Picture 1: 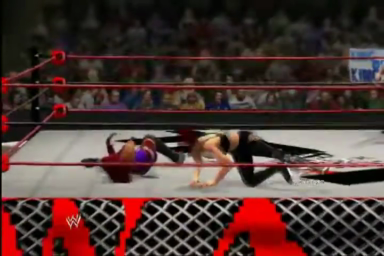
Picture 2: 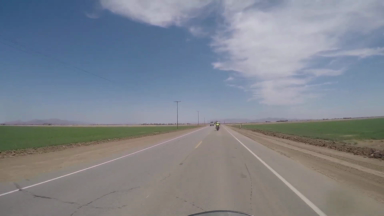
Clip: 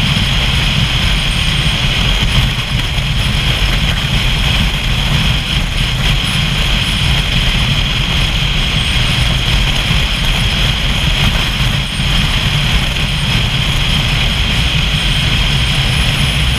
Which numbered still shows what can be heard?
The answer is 2